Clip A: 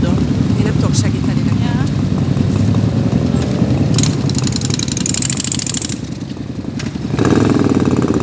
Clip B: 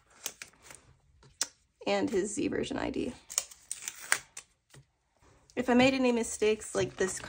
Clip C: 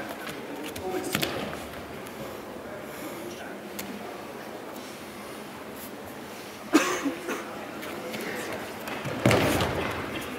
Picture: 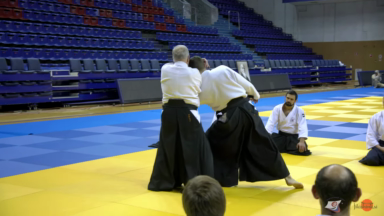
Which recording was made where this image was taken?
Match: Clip C